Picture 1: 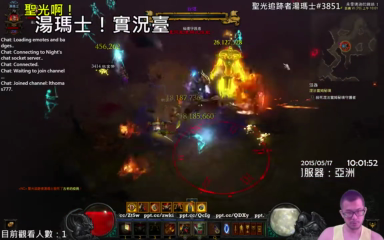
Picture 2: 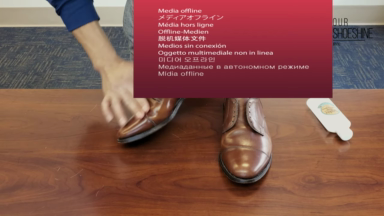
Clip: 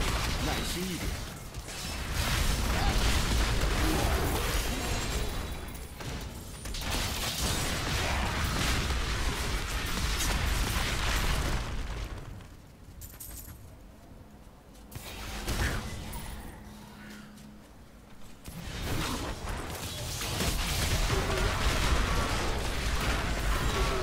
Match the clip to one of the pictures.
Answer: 1